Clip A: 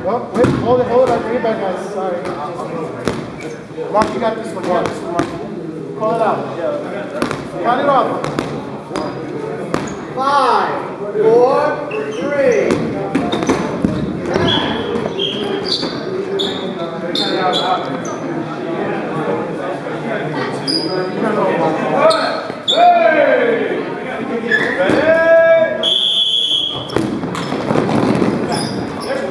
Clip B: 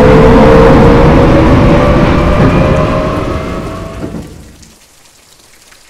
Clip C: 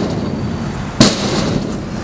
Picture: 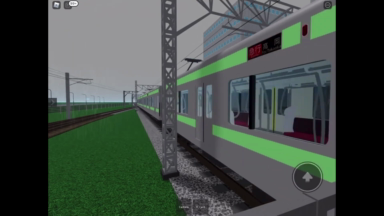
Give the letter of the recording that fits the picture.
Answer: B